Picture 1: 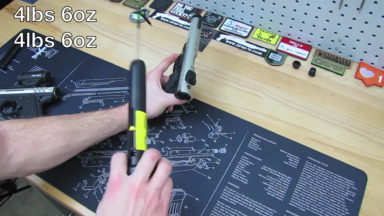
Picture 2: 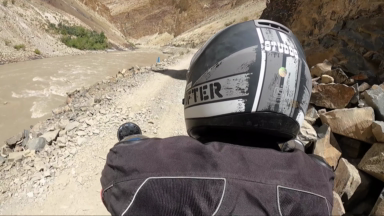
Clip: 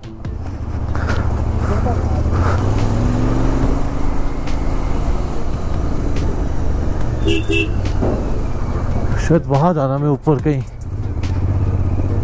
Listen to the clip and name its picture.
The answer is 2